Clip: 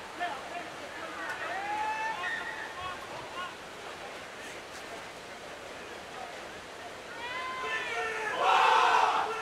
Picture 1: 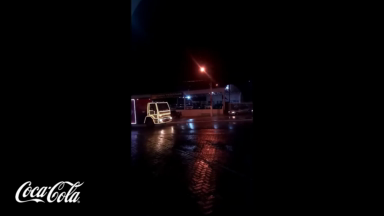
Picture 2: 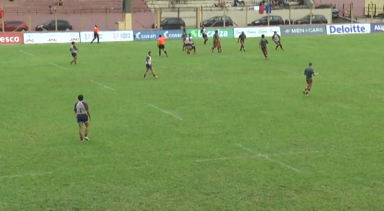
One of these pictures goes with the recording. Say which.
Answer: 2